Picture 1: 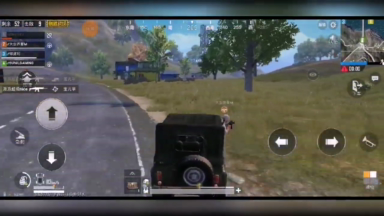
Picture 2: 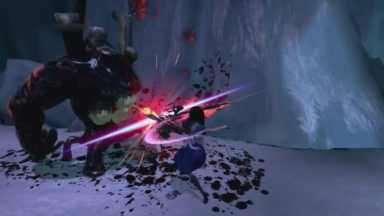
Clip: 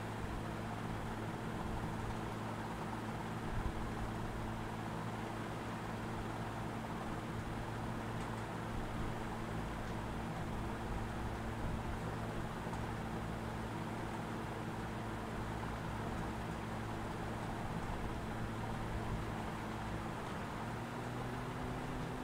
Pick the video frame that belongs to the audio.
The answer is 1